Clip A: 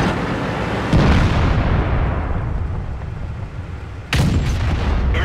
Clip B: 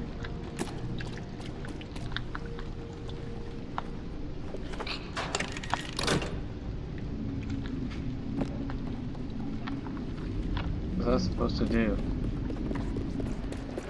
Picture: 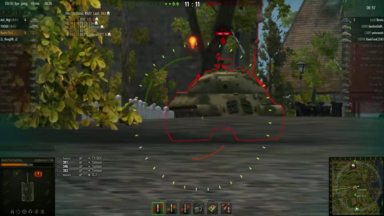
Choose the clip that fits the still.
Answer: A